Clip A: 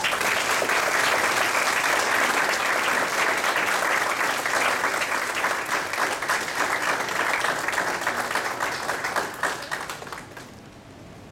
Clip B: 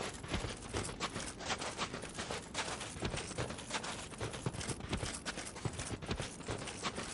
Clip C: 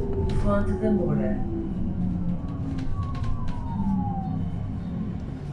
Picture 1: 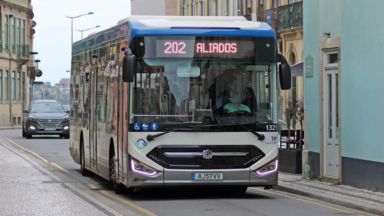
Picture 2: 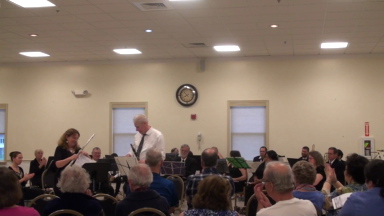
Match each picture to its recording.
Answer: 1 C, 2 A